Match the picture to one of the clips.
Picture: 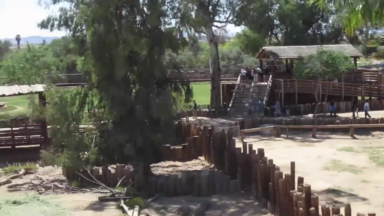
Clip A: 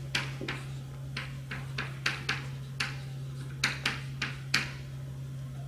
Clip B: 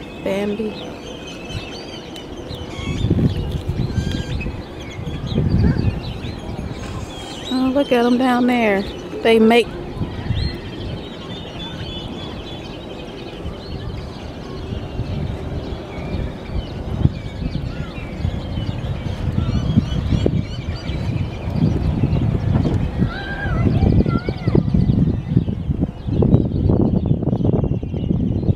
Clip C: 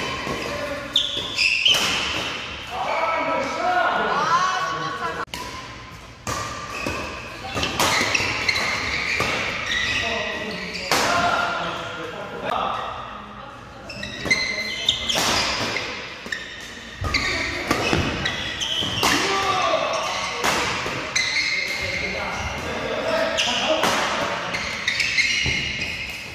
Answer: B